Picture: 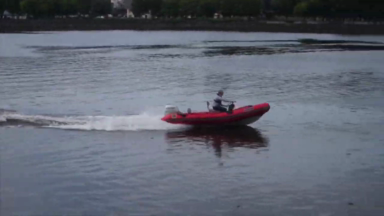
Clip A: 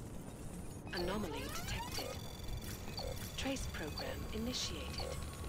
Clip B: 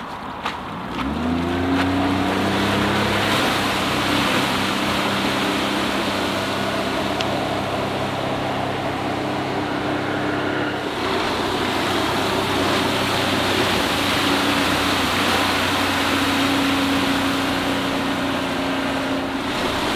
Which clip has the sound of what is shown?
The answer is B